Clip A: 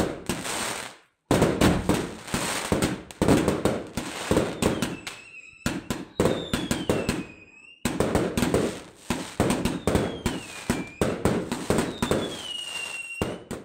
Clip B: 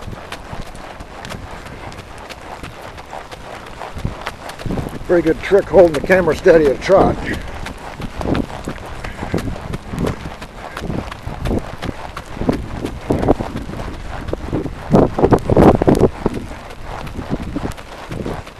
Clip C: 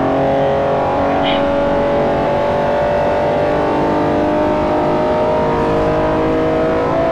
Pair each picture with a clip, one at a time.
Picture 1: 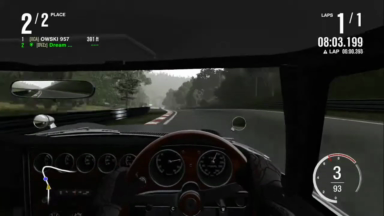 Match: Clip C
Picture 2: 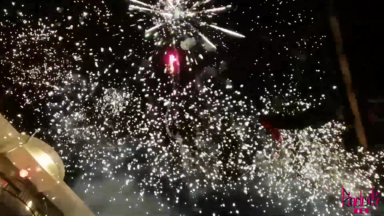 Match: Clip A